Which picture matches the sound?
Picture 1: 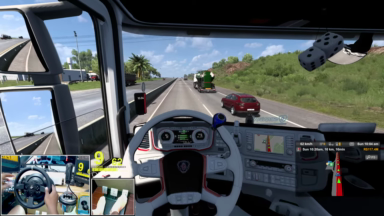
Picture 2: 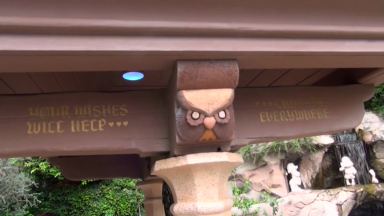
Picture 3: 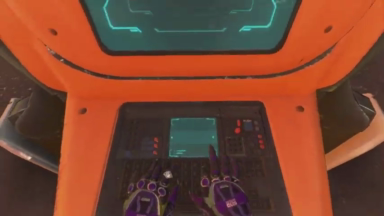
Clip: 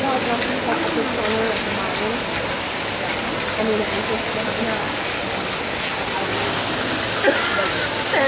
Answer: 2